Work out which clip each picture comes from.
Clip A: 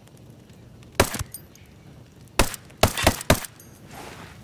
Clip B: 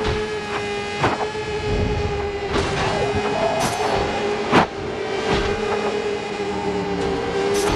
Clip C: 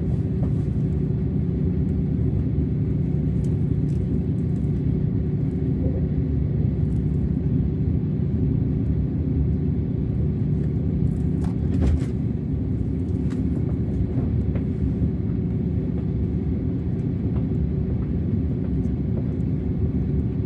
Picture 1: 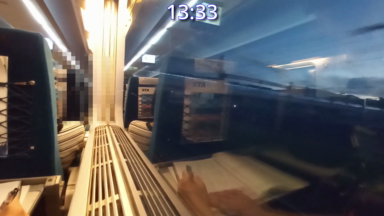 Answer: C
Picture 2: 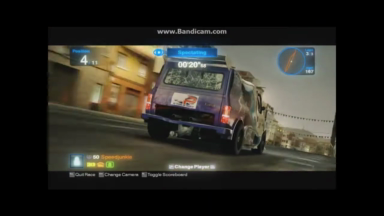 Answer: B